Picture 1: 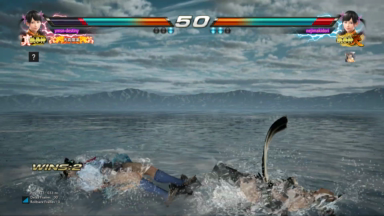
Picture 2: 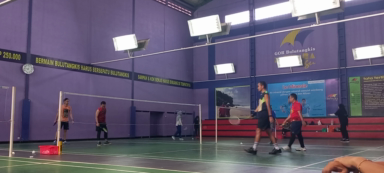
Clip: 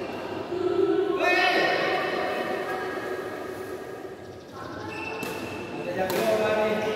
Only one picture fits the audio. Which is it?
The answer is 2